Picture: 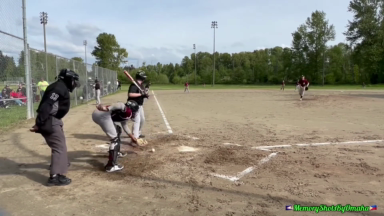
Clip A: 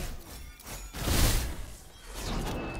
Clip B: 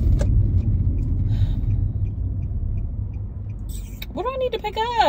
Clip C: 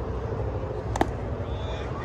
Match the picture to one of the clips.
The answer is C